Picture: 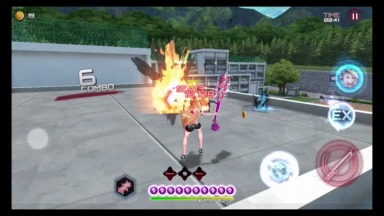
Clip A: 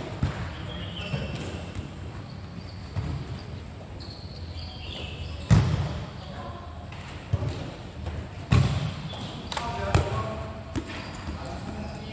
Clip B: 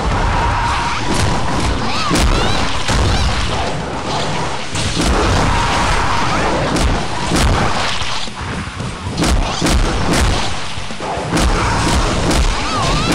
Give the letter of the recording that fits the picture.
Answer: B